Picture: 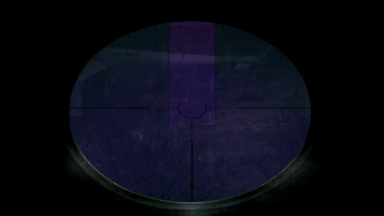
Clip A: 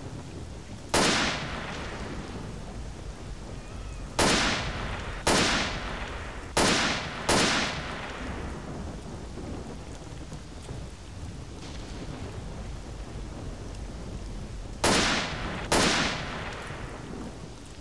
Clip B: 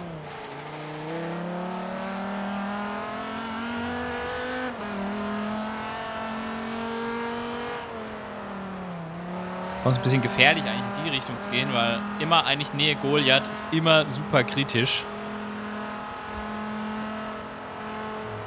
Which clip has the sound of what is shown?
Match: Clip A